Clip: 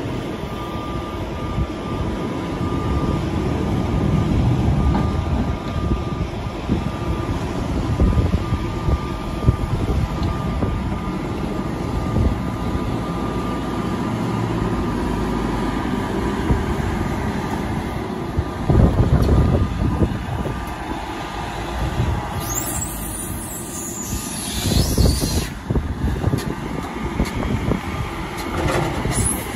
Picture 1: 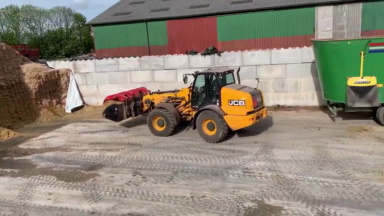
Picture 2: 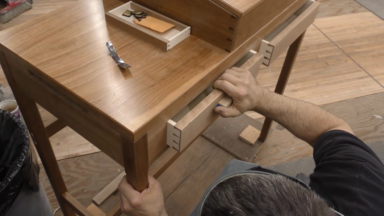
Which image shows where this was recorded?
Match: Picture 1